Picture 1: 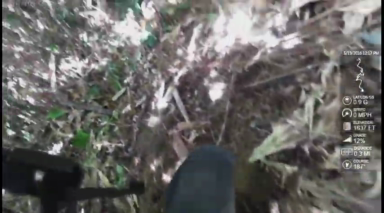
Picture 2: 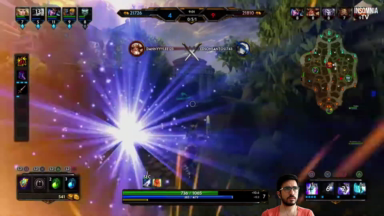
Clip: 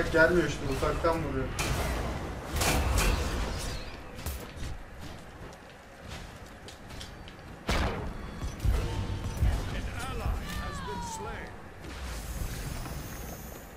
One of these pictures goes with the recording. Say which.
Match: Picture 2